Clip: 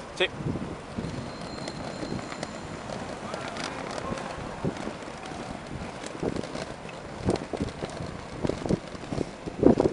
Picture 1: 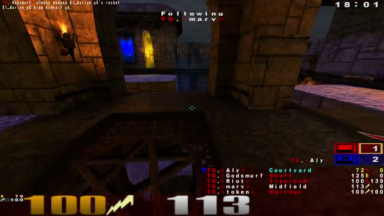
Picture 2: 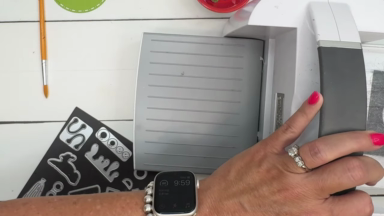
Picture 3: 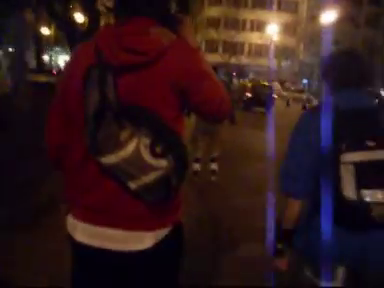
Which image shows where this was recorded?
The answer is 3